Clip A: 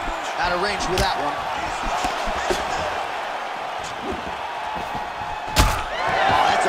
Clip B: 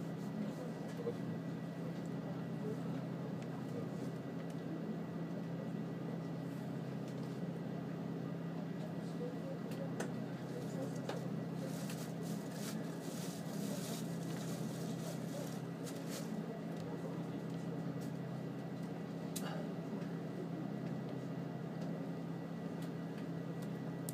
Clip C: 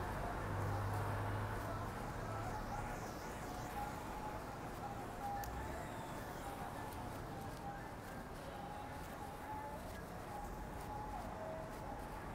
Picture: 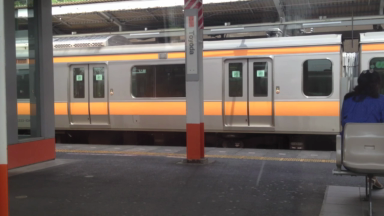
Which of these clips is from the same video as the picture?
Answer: B